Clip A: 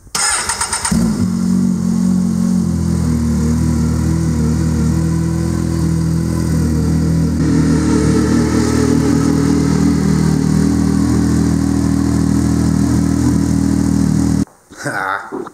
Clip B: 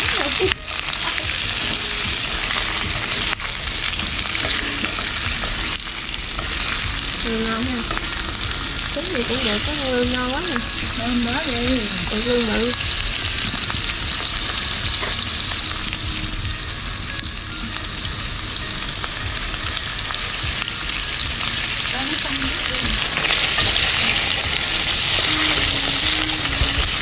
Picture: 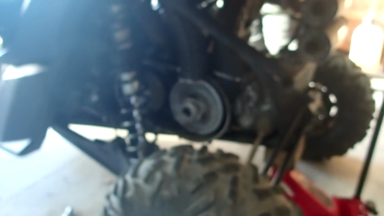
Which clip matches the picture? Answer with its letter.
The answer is A